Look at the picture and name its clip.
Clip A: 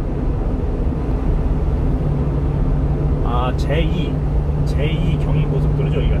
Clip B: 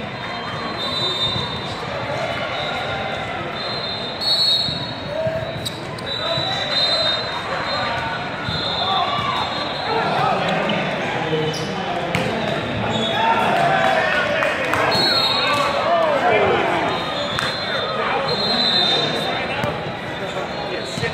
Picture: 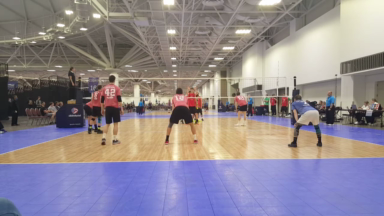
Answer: B